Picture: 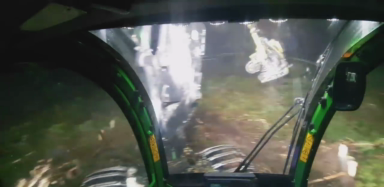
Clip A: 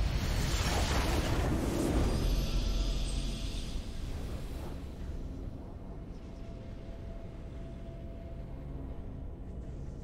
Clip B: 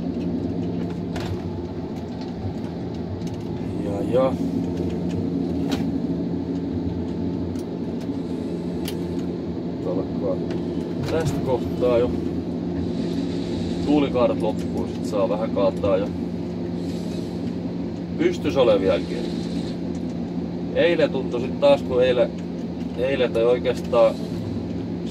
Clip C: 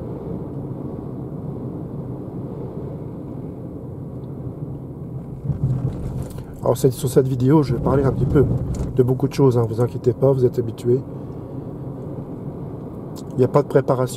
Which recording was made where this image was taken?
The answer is B